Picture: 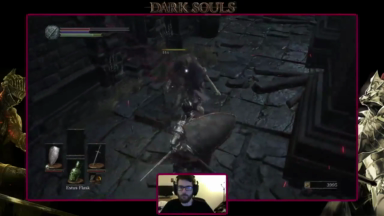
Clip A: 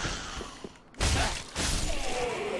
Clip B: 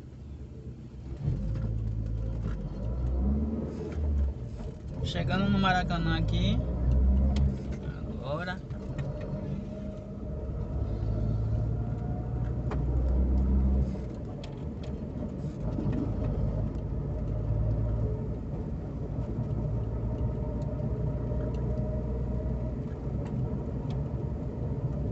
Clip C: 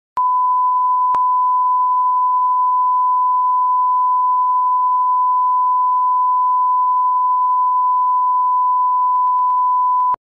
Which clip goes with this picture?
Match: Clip A